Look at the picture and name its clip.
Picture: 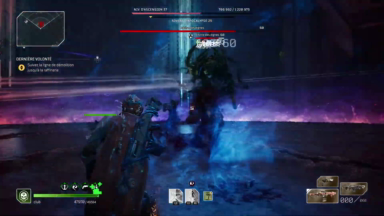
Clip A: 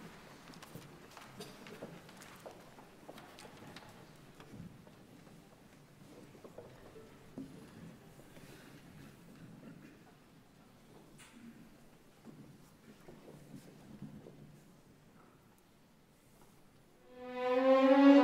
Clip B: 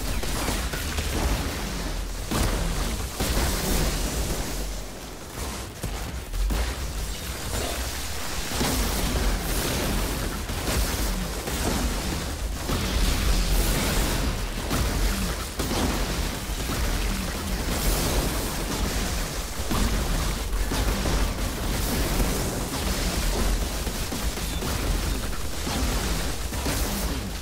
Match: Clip B